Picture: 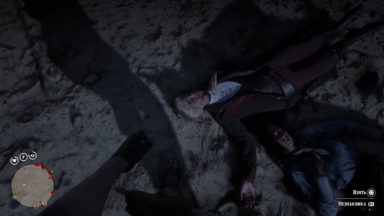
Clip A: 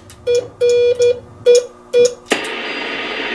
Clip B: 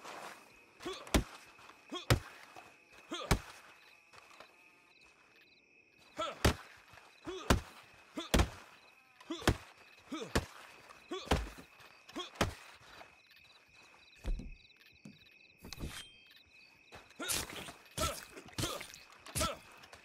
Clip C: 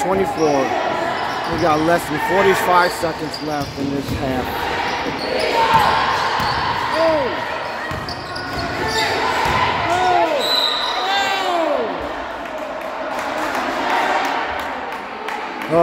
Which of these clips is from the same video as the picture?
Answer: B